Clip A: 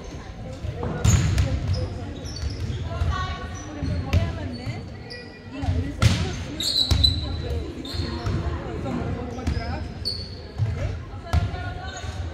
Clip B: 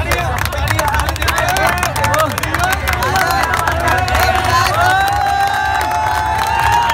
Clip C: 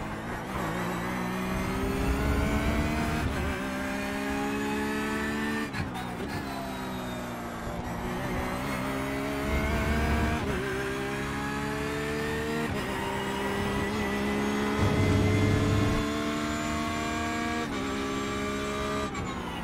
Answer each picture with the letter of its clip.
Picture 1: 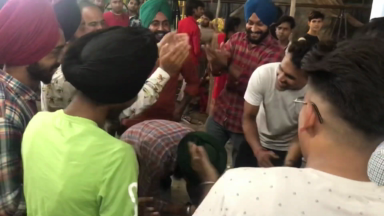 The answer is B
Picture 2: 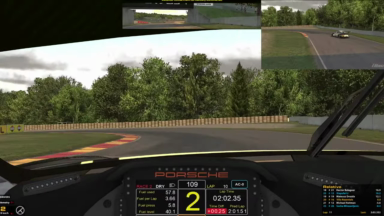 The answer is C